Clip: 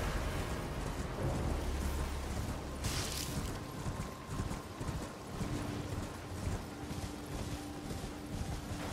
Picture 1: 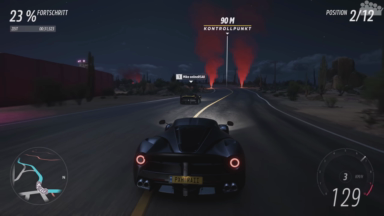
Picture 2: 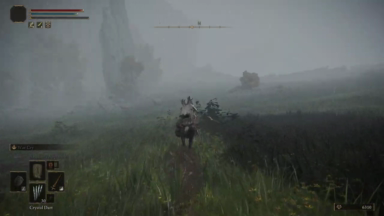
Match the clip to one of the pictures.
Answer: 2